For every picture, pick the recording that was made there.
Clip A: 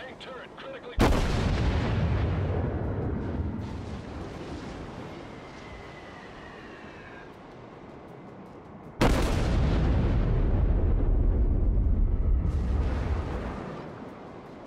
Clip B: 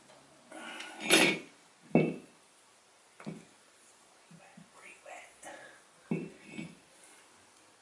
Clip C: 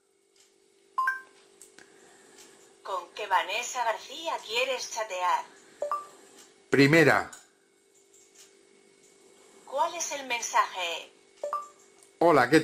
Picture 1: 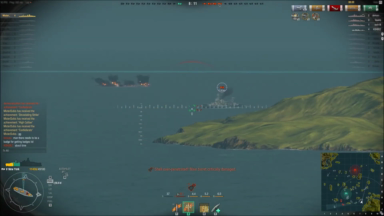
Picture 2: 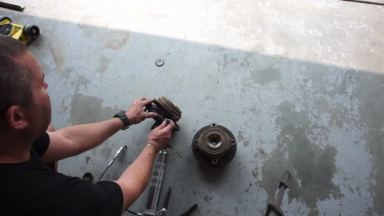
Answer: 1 A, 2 B